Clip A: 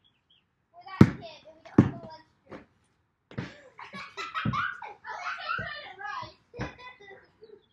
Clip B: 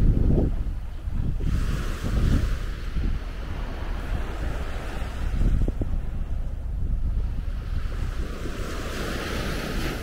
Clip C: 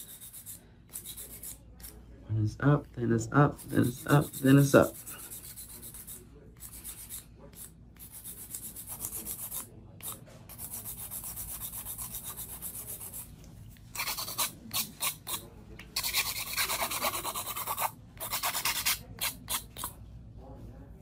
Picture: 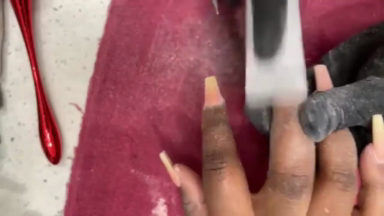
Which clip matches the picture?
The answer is C